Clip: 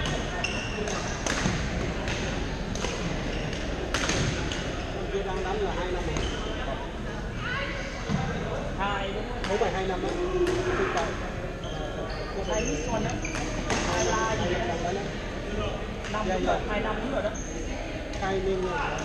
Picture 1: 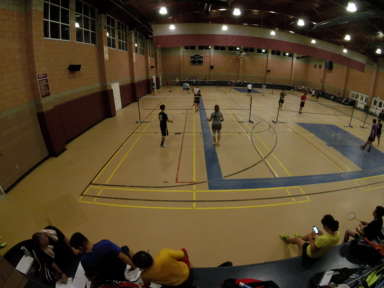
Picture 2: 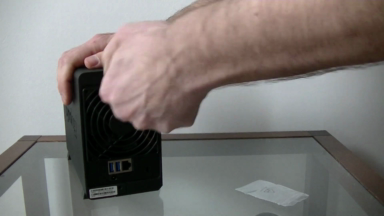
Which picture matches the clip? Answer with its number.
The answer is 1